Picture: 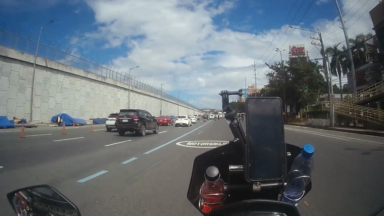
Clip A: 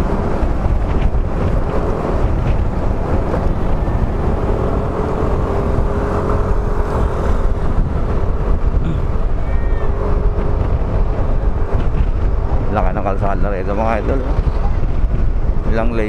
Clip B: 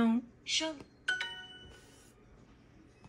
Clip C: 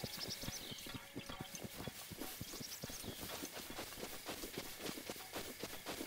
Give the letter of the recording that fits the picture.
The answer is A